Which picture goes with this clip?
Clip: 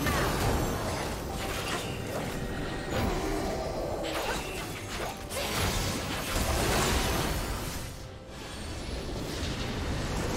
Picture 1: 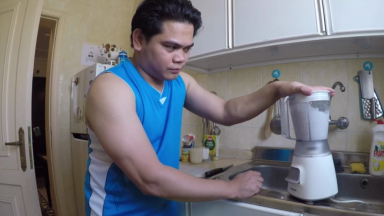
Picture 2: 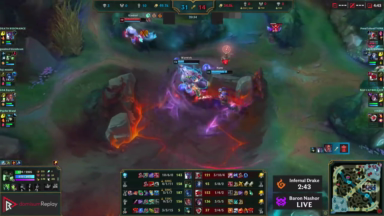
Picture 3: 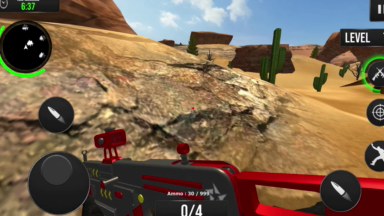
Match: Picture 2